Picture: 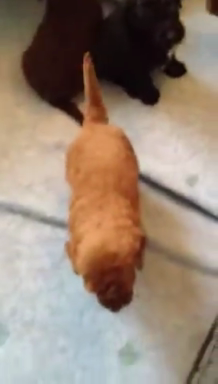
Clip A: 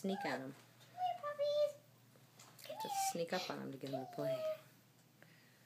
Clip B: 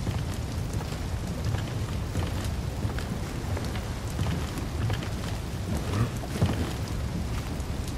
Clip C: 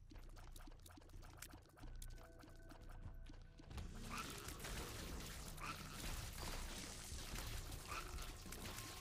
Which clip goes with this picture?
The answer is A